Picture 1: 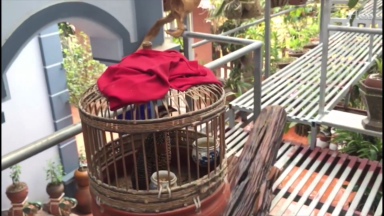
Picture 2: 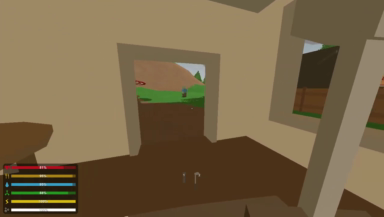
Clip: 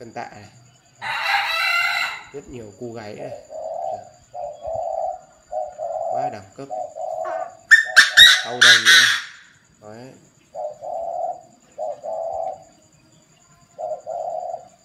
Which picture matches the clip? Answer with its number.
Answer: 1